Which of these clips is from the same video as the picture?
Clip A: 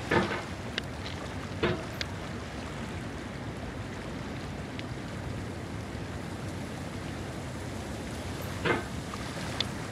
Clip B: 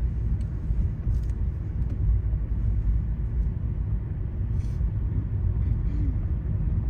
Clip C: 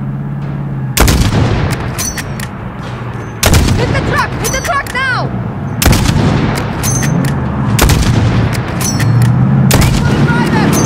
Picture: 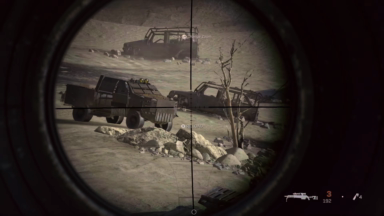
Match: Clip C